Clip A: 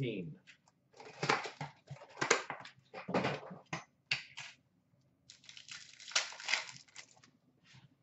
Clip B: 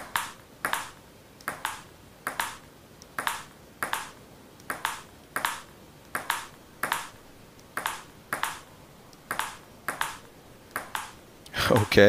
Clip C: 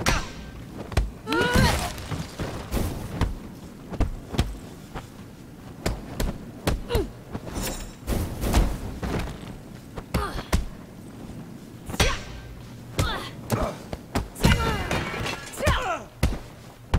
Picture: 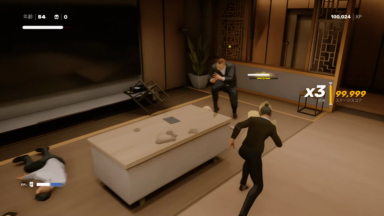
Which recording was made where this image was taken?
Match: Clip C